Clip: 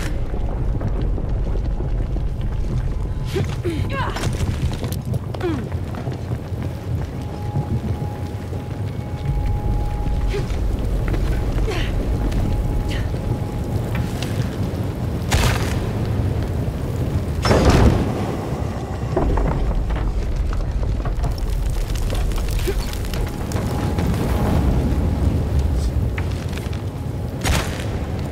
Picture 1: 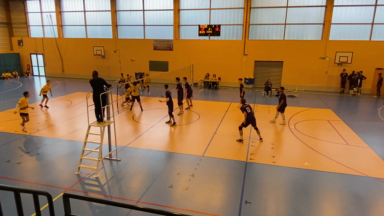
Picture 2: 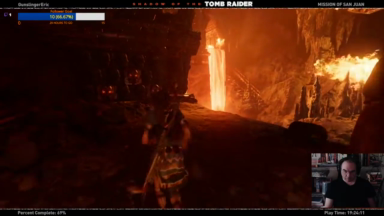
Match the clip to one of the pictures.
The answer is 2